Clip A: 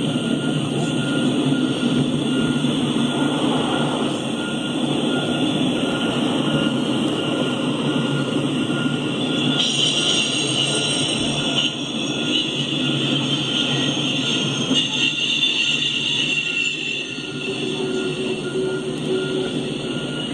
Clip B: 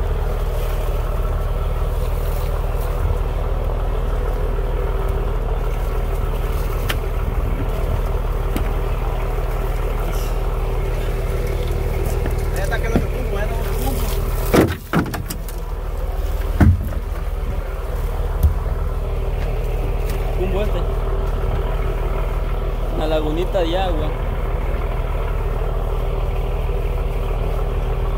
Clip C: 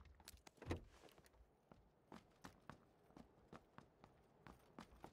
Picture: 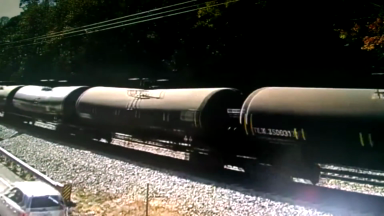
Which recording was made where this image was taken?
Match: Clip A